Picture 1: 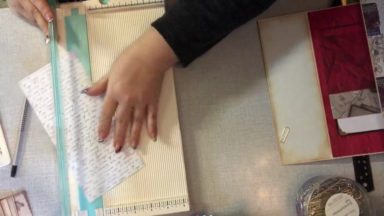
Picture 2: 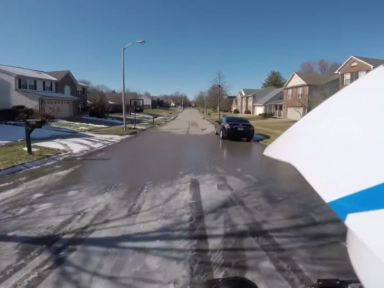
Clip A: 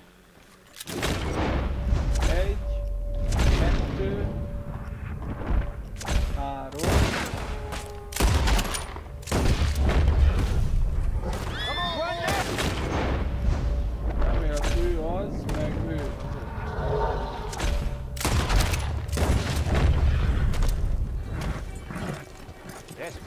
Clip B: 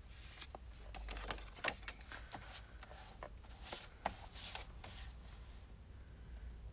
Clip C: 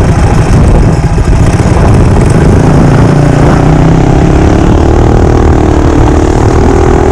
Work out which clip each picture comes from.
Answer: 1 B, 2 C